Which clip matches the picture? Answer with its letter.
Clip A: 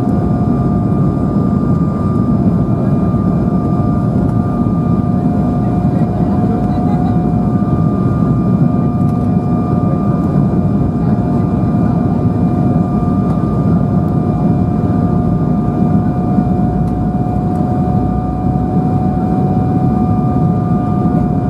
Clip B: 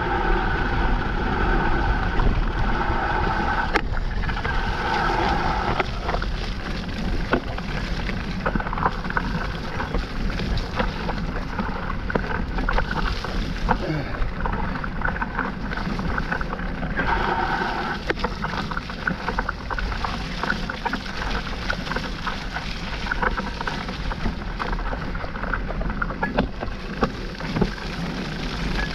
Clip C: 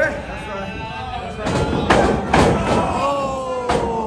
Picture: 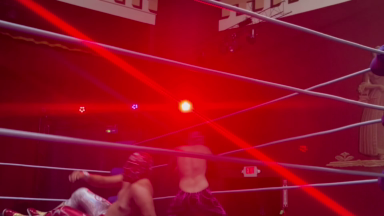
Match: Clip C